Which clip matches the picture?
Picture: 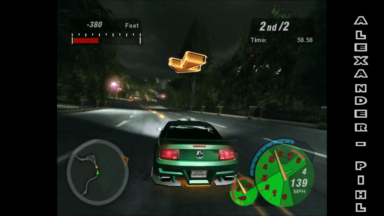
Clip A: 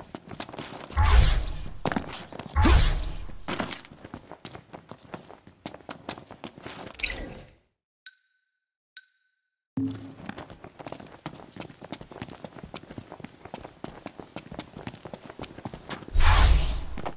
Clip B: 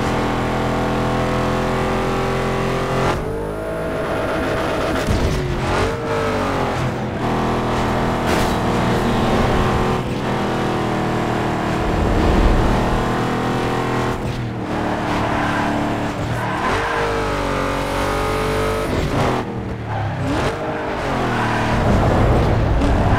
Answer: B